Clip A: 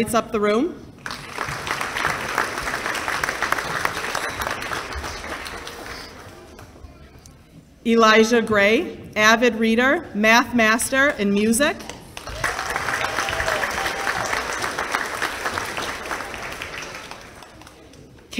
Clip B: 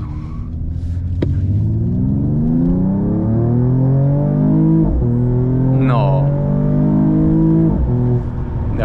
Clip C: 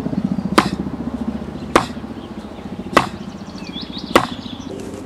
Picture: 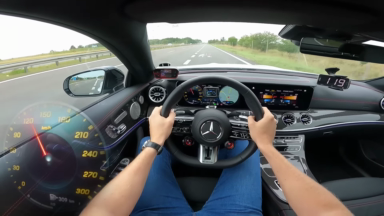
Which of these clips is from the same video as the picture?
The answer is B